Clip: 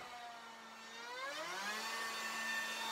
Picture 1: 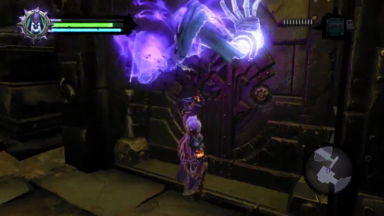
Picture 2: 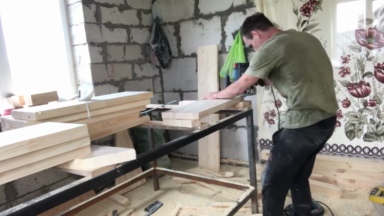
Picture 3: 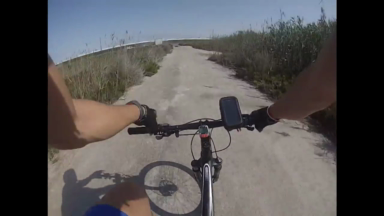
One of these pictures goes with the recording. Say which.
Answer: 2